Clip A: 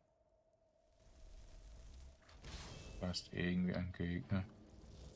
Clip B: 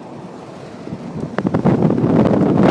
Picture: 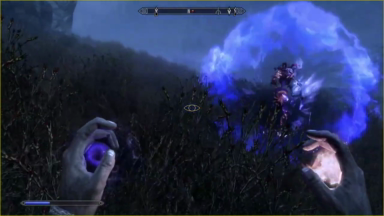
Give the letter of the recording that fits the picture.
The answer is A